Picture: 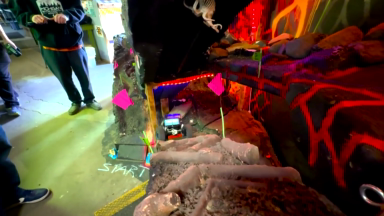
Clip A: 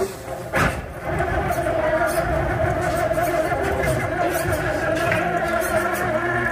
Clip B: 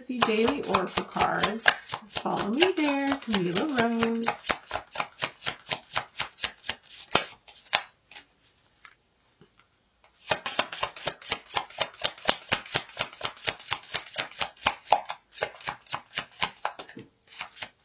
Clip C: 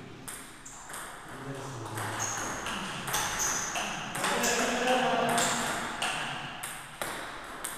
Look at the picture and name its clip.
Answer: A